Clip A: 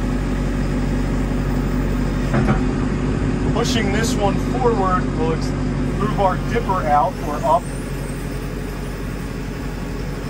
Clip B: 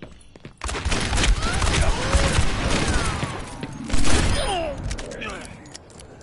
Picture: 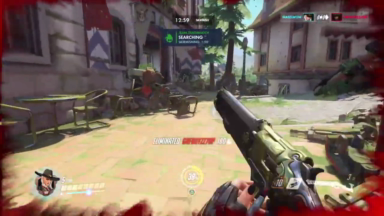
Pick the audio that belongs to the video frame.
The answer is B